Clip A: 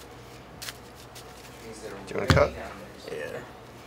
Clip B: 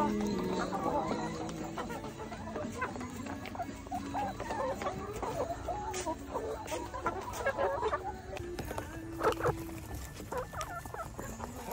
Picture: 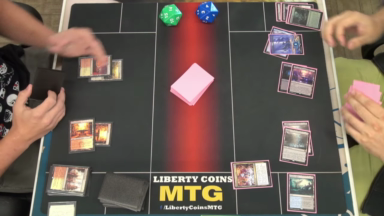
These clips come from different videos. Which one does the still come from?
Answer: A